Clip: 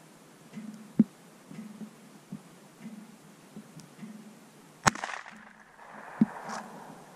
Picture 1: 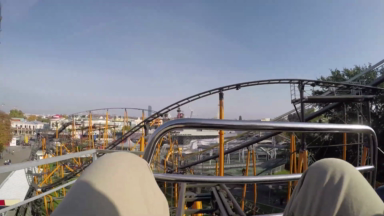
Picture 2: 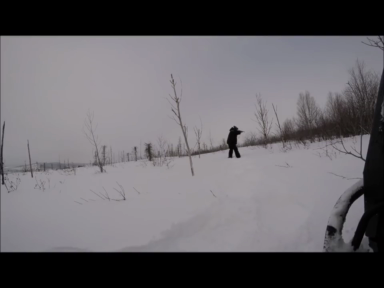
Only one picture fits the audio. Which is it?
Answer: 2